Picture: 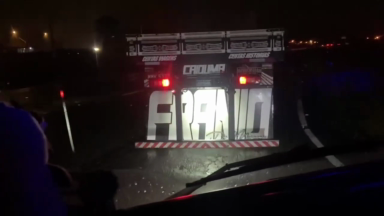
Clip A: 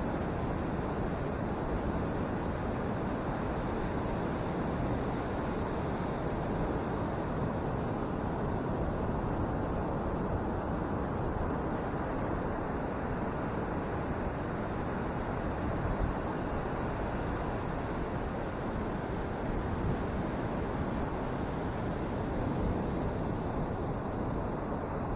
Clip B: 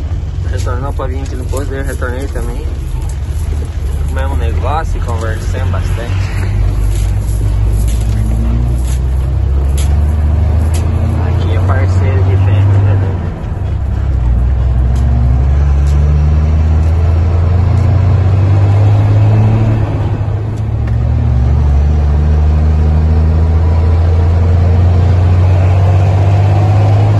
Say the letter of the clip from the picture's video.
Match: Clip B